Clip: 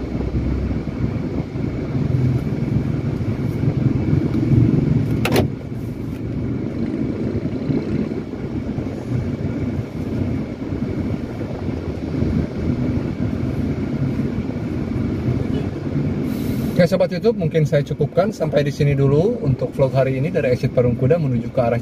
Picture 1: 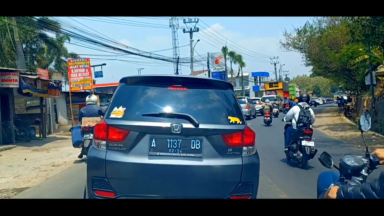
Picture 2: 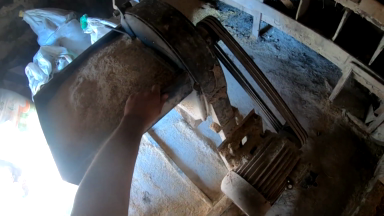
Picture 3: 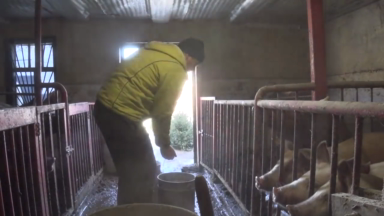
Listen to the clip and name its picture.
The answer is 1